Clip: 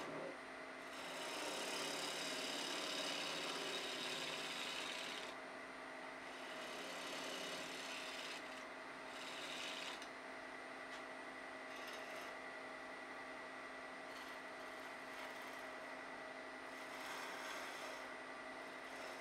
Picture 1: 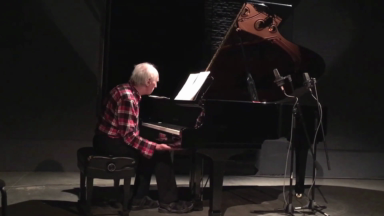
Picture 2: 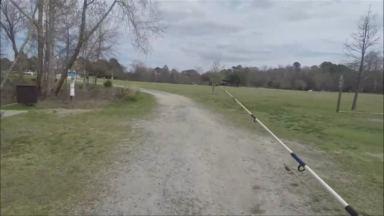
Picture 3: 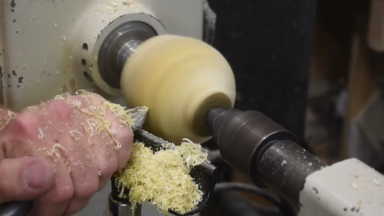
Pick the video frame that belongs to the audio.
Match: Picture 3